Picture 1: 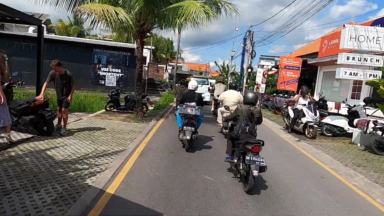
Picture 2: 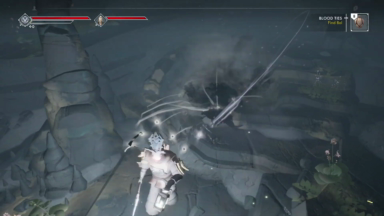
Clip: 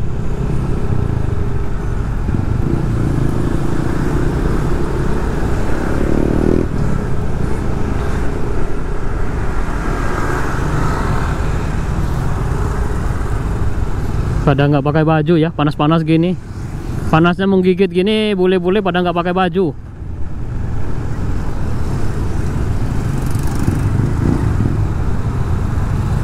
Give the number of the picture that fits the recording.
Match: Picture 1